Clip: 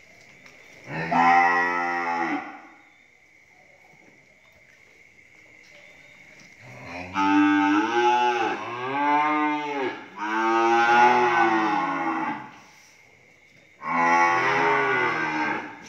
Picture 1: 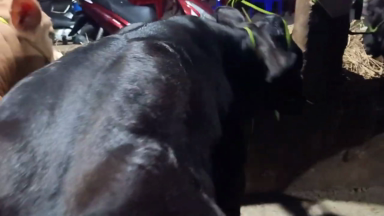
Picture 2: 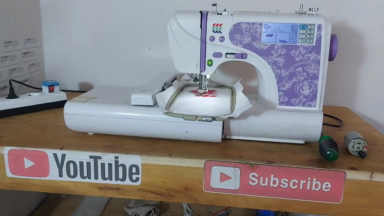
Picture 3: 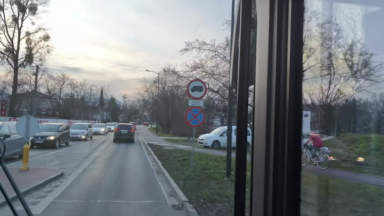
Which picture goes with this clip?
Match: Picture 1